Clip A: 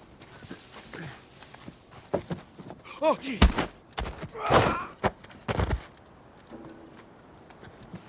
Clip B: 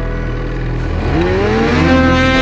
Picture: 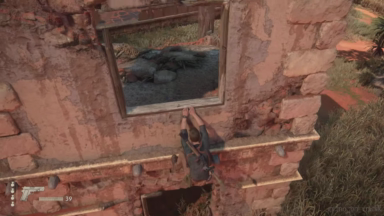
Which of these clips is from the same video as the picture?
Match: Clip A